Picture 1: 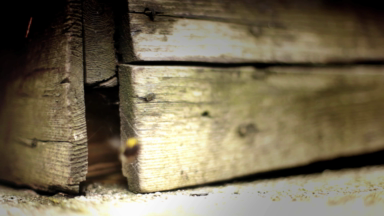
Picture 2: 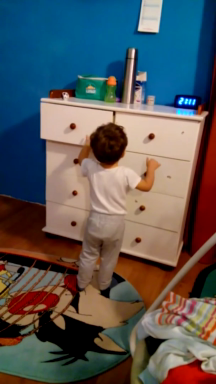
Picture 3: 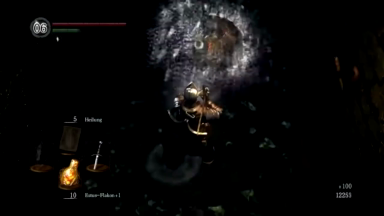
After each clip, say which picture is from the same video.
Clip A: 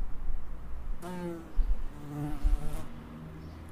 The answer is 1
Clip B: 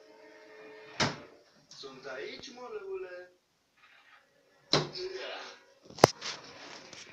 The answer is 2